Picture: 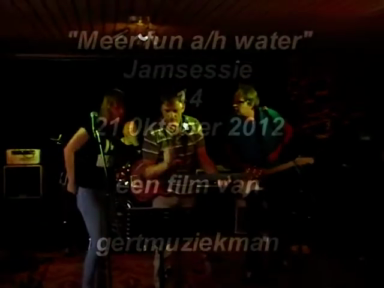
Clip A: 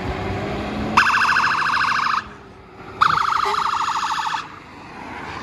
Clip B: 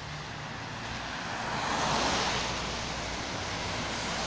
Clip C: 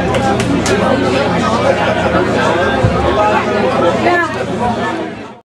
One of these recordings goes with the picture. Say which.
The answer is C